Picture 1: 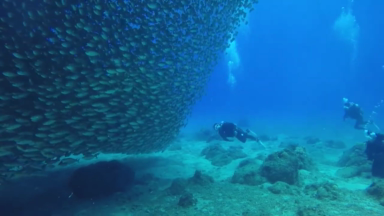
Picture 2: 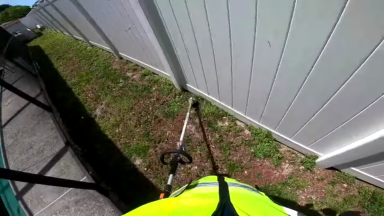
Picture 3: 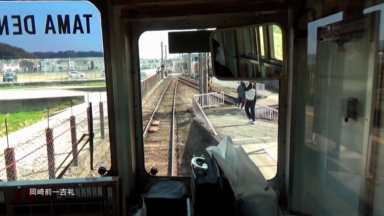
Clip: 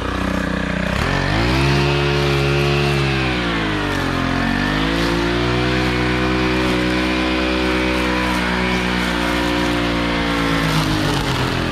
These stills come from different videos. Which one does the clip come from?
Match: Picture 2